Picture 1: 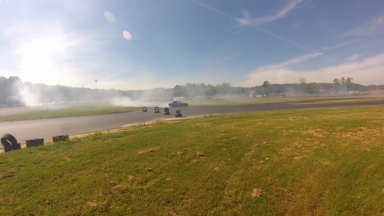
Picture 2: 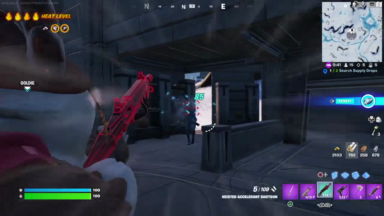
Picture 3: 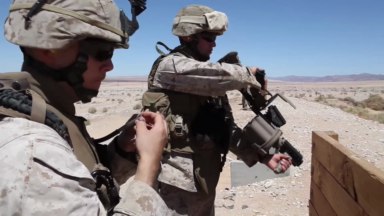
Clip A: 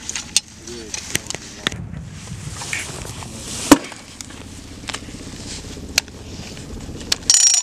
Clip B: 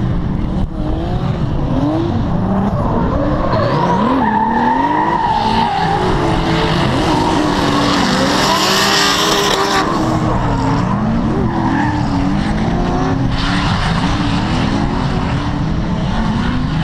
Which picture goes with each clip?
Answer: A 3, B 1